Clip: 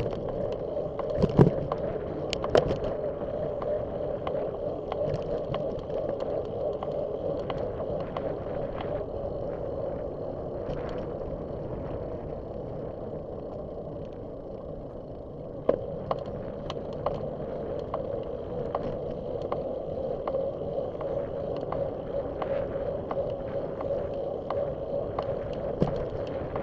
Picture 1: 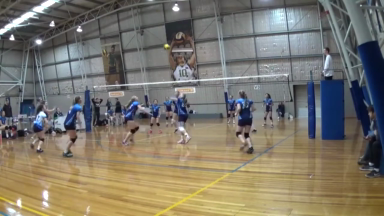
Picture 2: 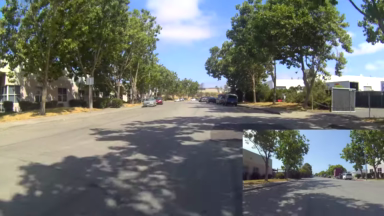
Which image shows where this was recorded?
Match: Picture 2